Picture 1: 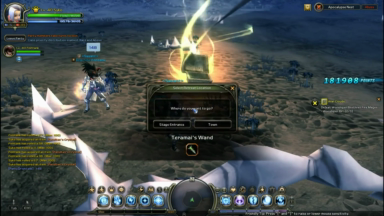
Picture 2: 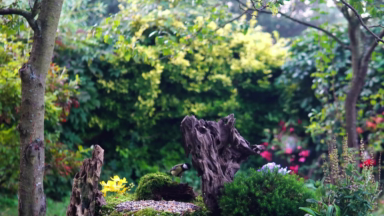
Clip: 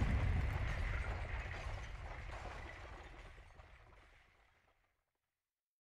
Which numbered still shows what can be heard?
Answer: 1